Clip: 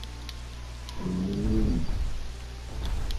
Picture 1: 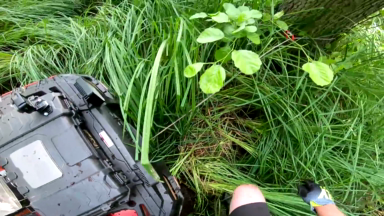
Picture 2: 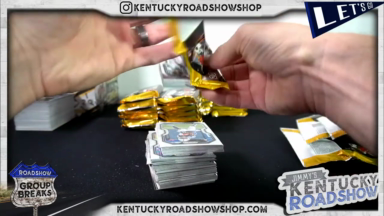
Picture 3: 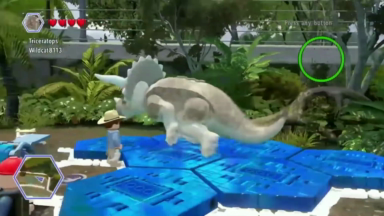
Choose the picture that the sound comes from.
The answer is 3